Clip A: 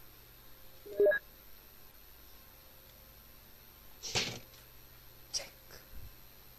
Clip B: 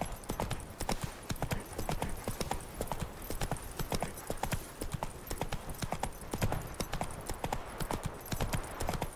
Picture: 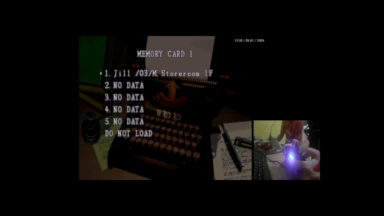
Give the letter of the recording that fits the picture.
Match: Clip A